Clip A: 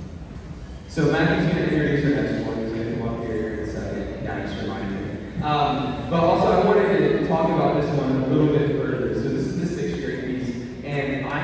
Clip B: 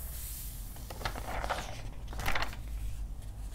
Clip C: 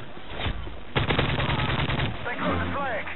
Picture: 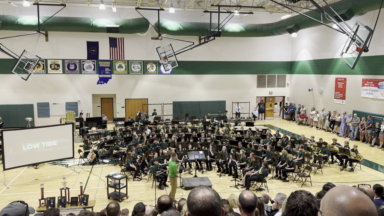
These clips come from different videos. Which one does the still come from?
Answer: A